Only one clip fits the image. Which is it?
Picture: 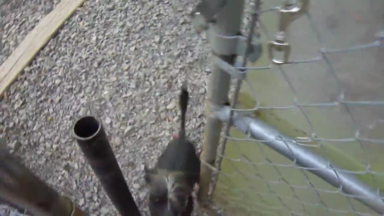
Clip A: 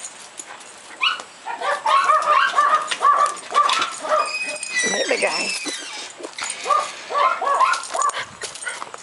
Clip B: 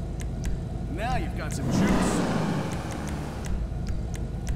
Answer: A